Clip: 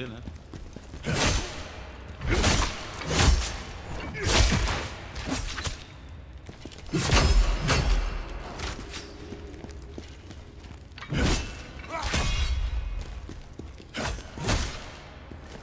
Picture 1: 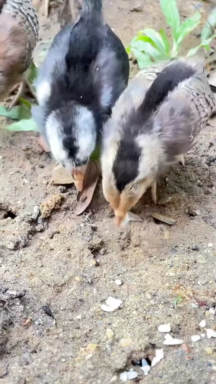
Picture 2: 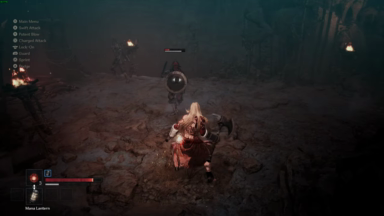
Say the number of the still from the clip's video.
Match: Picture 2